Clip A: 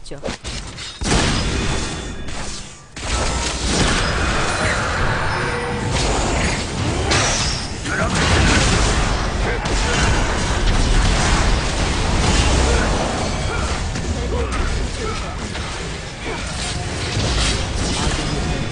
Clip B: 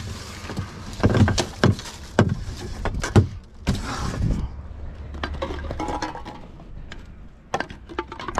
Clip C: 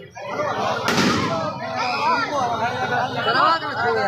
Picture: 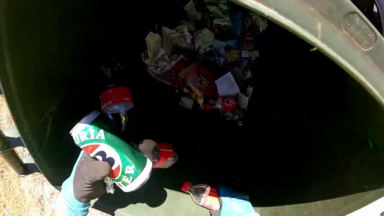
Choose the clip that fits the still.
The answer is B